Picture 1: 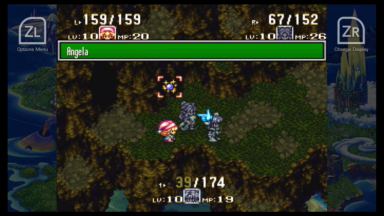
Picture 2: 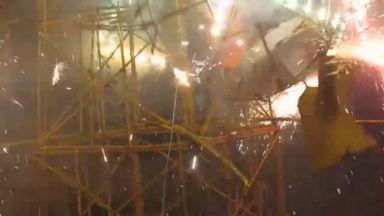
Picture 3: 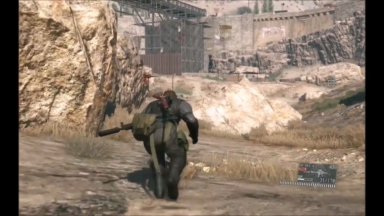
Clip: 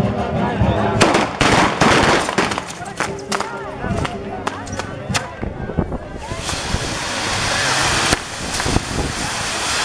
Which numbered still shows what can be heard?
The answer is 2